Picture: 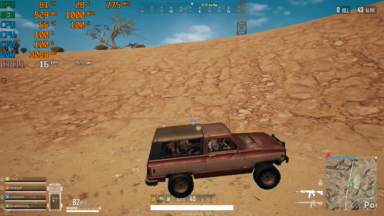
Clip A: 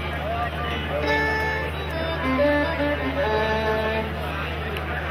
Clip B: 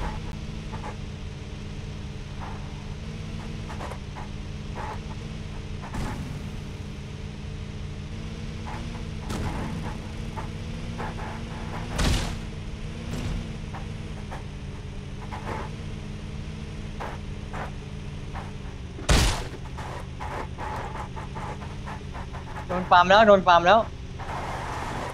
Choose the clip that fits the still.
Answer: B